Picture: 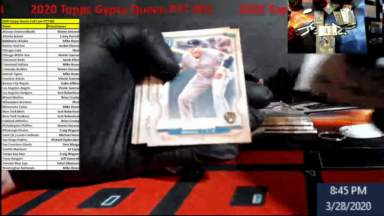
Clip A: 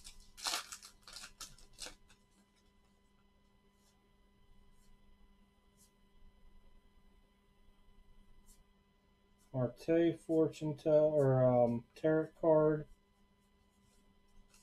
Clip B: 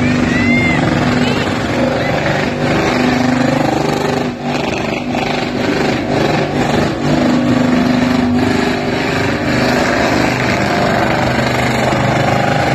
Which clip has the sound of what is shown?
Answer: A